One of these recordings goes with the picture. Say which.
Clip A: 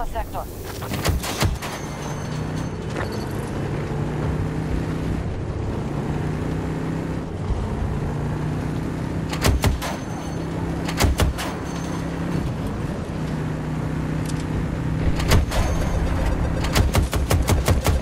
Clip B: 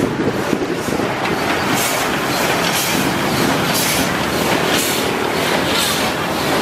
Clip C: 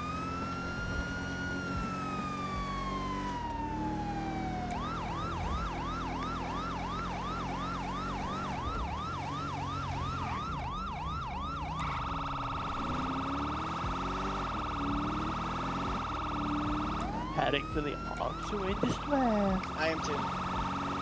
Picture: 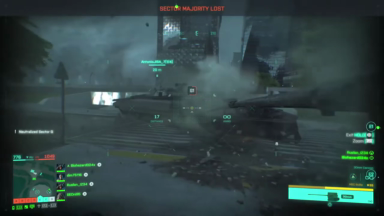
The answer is A